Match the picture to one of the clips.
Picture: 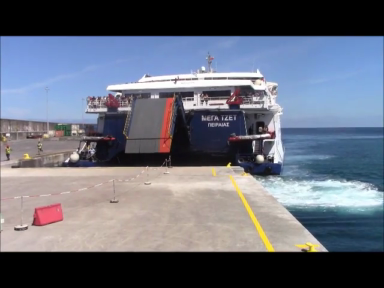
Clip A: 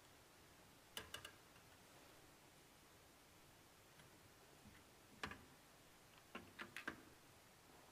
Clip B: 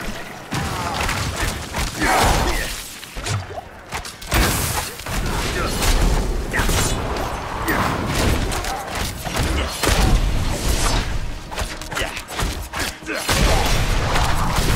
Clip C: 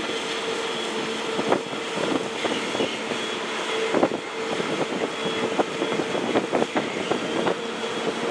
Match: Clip C